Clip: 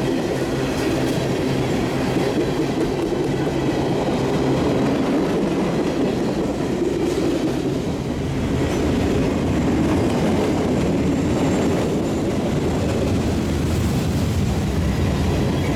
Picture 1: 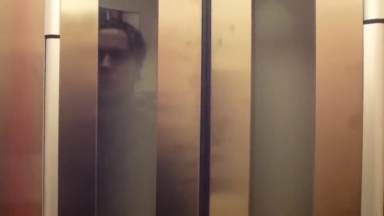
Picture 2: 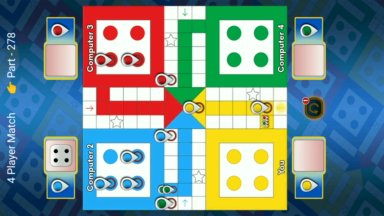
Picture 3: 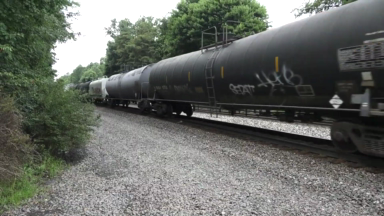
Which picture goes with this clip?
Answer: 3